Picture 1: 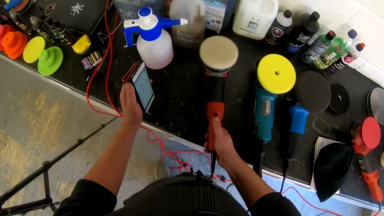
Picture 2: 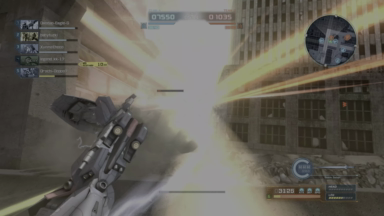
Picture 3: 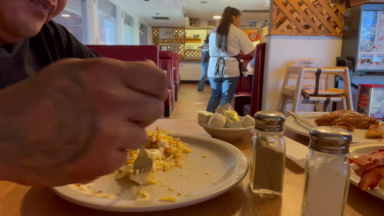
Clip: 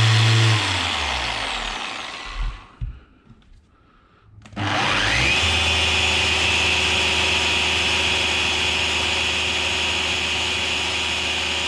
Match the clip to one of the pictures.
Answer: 1